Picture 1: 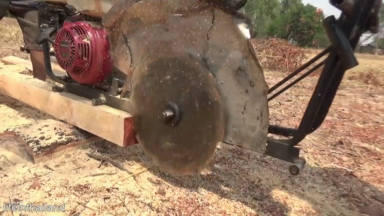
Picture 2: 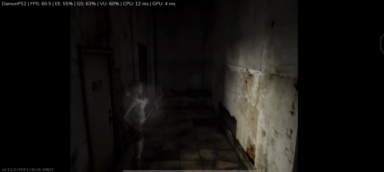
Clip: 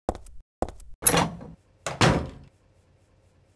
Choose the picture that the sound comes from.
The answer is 2